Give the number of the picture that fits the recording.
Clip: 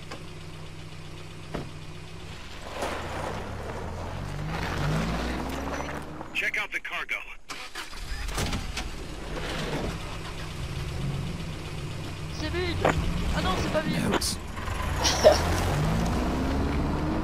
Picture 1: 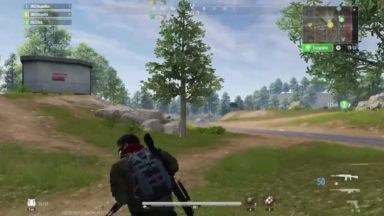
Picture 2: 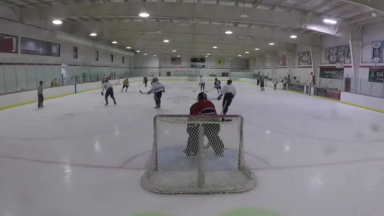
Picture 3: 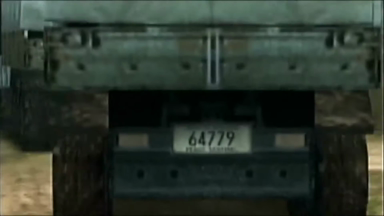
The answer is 3